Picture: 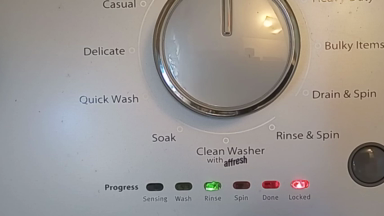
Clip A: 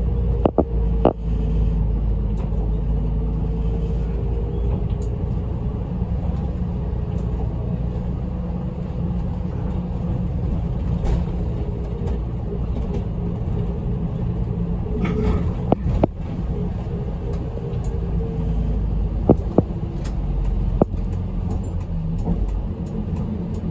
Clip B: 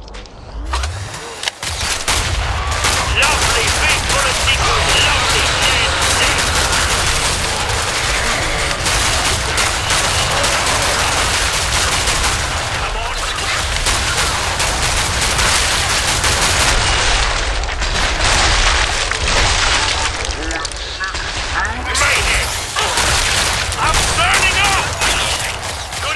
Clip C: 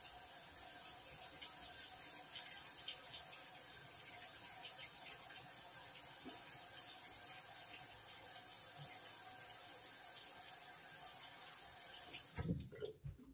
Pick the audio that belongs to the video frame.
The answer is C